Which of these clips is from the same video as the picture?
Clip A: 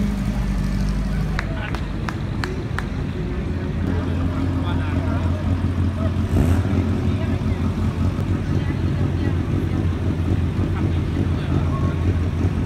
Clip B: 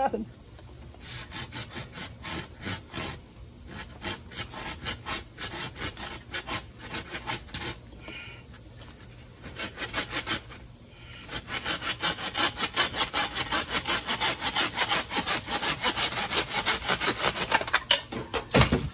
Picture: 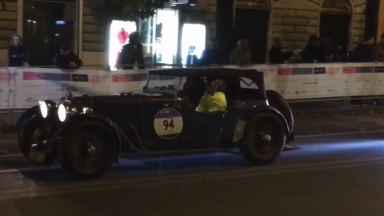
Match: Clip A